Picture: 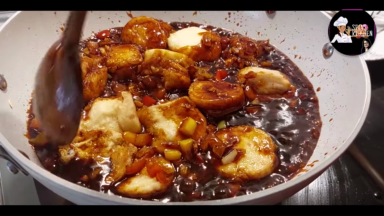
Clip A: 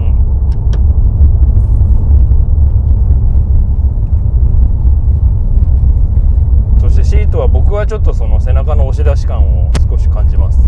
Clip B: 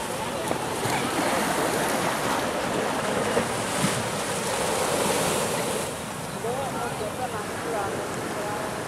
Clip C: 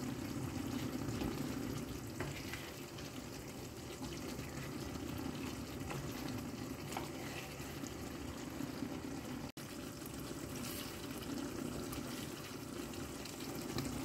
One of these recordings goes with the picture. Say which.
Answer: C